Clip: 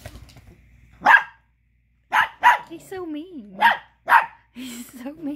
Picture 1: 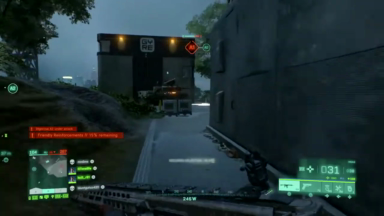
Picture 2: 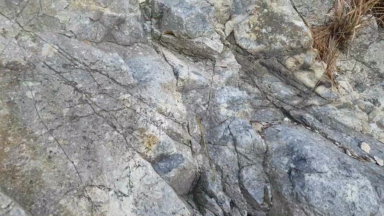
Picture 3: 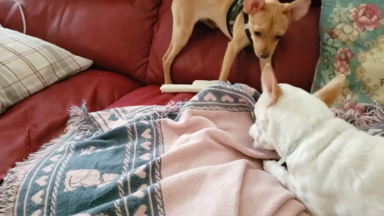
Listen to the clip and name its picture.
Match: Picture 3